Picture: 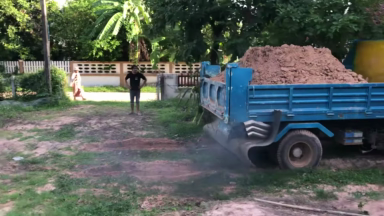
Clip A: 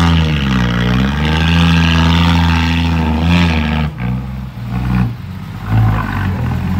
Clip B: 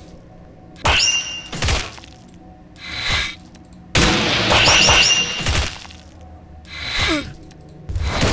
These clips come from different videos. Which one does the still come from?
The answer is A